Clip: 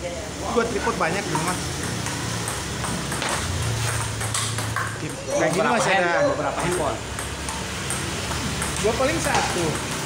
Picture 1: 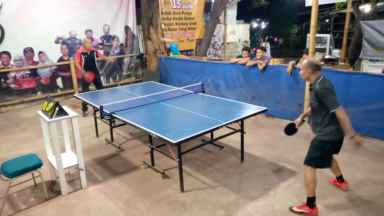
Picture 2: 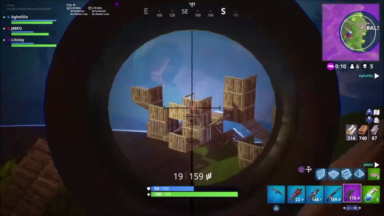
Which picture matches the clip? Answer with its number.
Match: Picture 1